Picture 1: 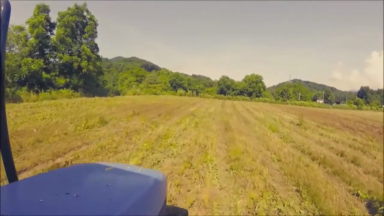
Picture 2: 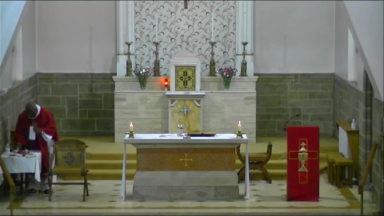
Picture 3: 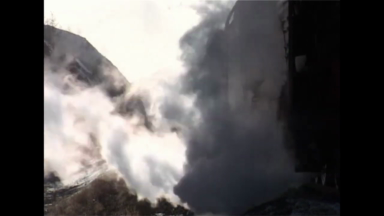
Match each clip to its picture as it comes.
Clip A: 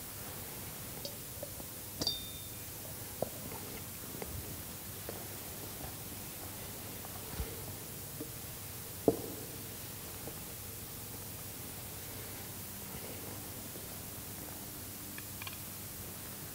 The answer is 2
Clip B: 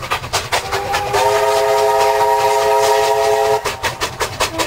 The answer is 3